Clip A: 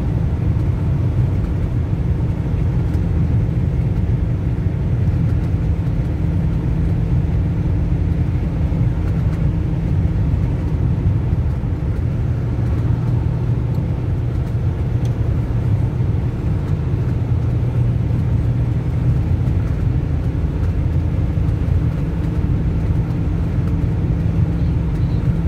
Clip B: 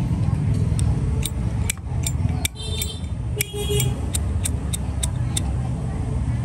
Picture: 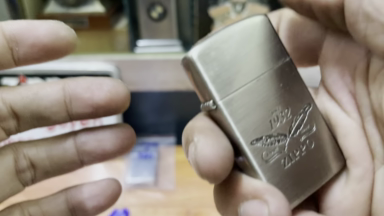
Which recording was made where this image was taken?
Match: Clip B